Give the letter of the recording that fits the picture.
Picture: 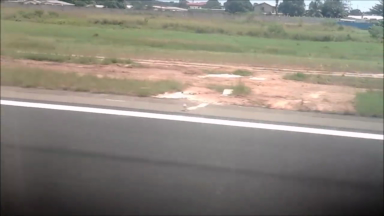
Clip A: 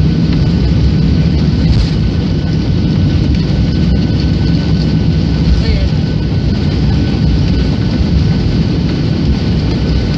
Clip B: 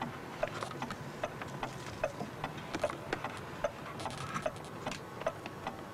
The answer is A